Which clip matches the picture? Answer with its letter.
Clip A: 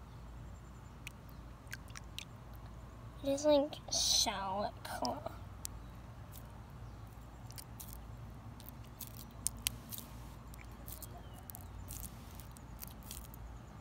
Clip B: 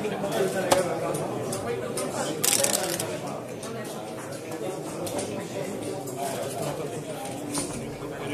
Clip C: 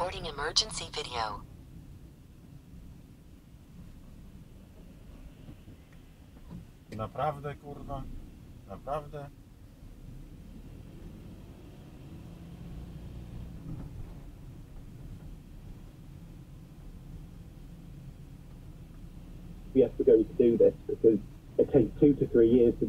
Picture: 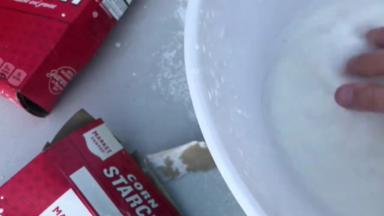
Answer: A